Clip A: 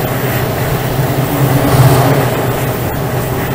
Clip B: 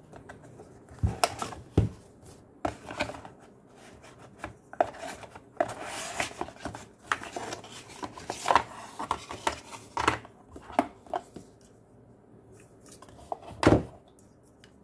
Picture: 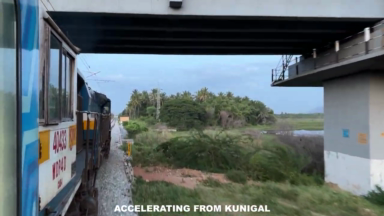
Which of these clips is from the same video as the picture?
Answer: A